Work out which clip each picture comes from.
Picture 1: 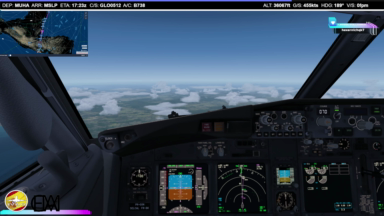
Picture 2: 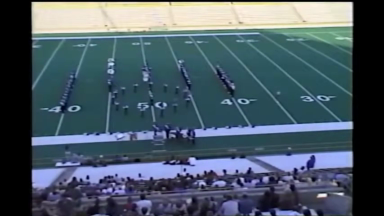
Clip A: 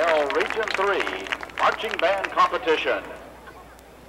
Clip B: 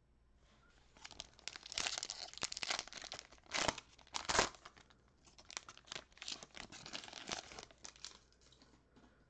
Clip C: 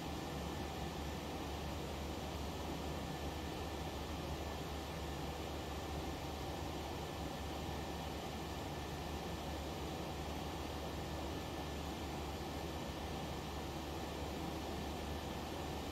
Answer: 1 C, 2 A